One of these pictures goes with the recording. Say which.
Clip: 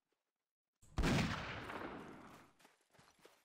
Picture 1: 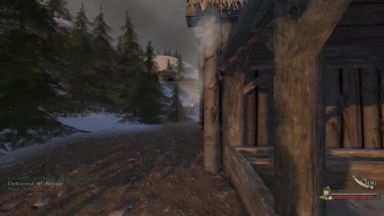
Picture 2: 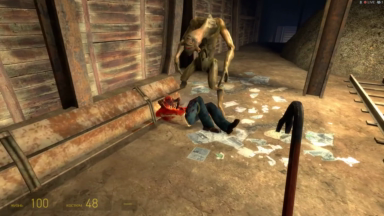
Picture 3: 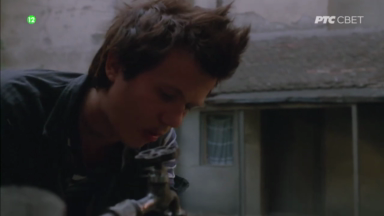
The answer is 1